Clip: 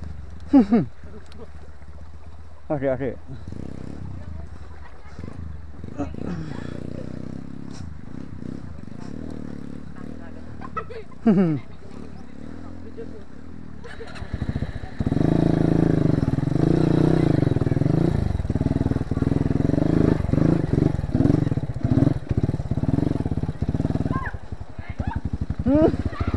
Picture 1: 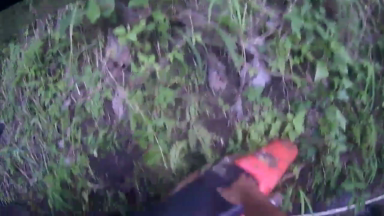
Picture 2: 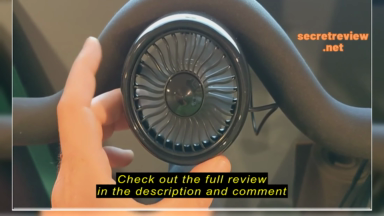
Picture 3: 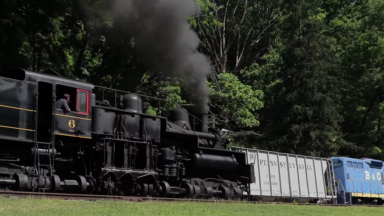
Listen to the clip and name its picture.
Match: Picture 1